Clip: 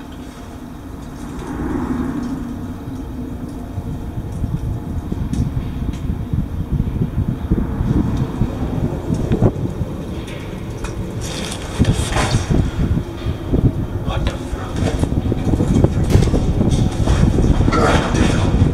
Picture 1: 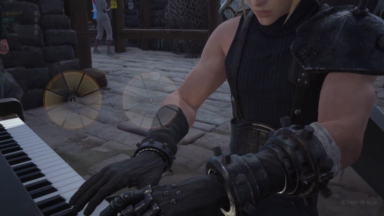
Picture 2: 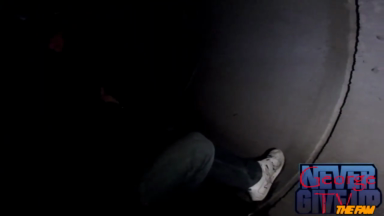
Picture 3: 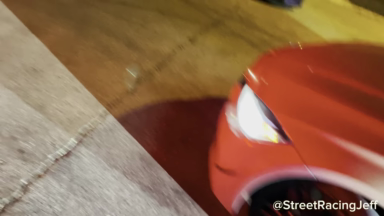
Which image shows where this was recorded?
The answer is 2